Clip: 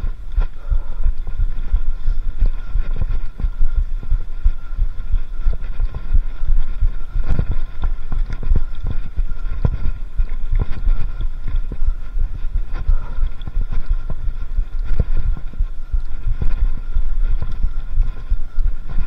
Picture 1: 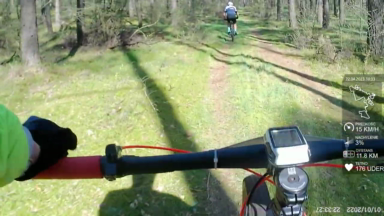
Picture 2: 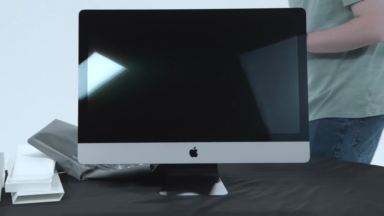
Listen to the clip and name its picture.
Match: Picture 1